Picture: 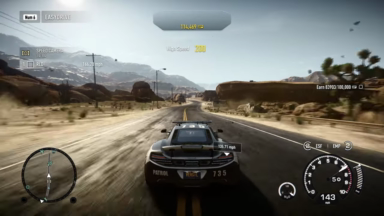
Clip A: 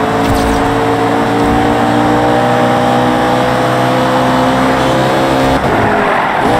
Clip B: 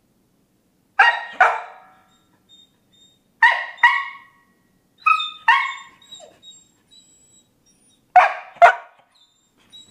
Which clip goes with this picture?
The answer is A